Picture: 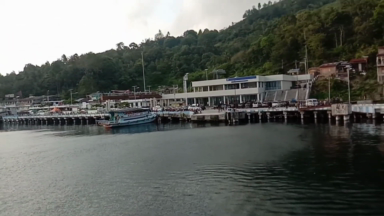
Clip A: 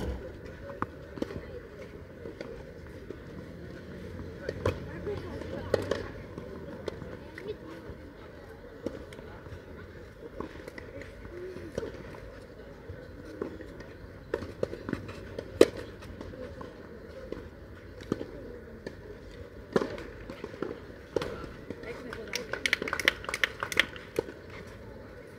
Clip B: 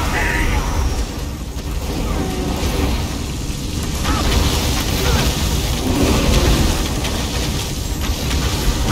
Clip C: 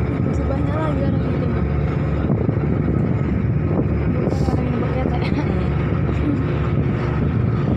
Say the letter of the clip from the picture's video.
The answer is C